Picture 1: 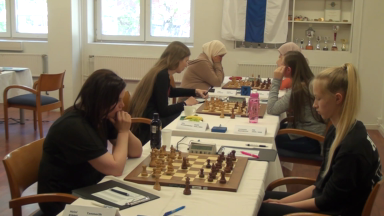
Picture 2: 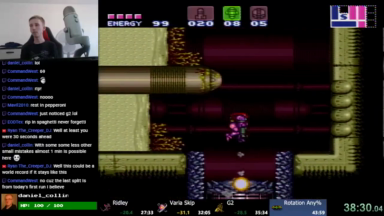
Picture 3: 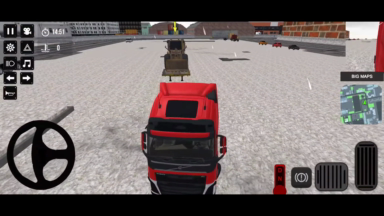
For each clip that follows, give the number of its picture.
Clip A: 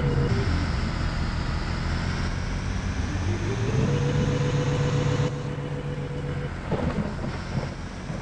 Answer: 3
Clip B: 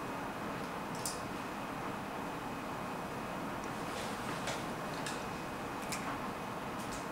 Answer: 1